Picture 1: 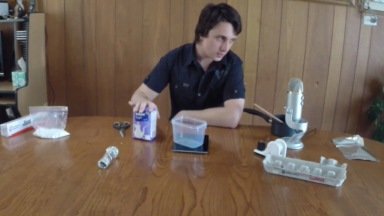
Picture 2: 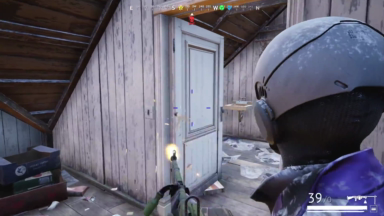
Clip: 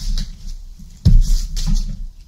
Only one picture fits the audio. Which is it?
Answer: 1